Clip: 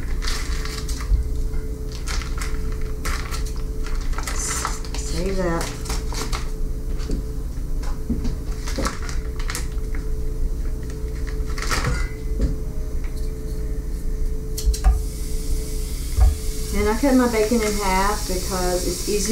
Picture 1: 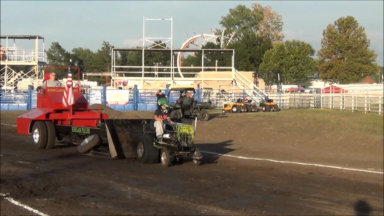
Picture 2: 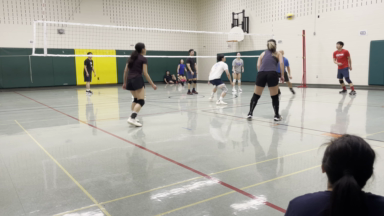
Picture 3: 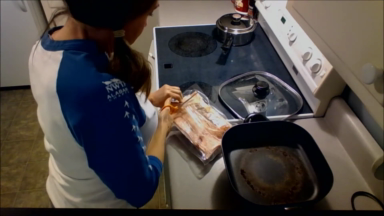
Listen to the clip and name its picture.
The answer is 3